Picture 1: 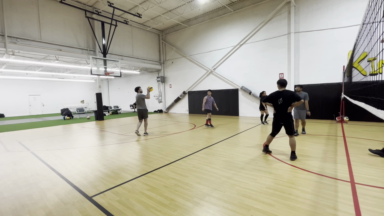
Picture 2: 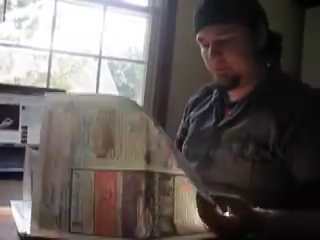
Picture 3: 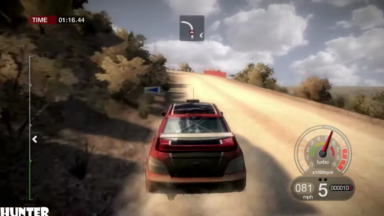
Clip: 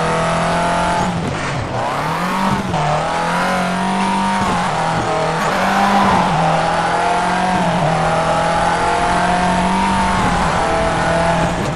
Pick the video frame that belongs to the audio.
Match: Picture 3